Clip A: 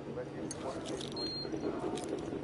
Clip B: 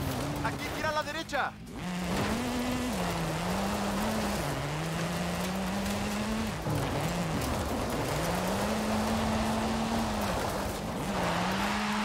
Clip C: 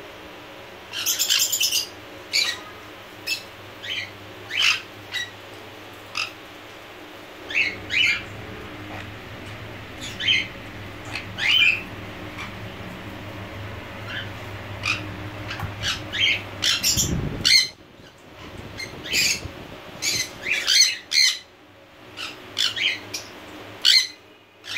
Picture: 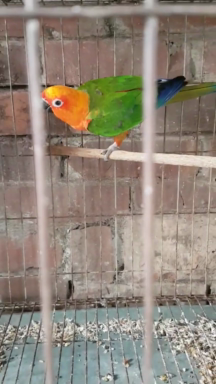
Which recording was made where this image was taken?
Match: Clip C